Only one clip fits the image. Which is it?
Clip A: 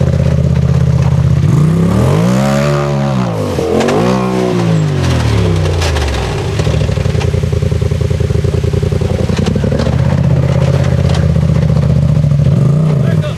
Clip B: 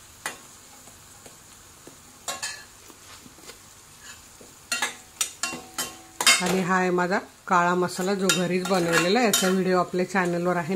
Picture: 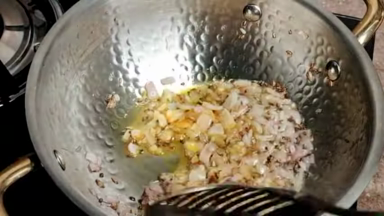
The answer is B